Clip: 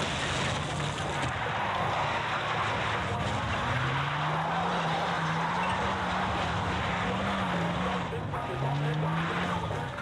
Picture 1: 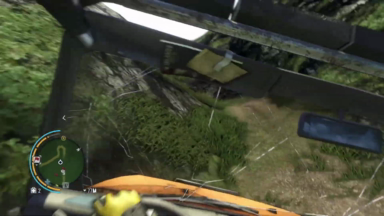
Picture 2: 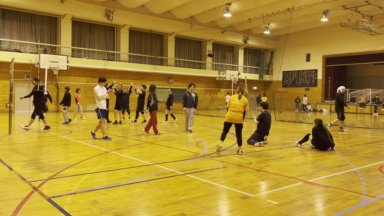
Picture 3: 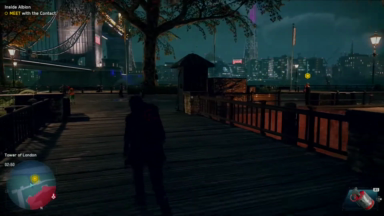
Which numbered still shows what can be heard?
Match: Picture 1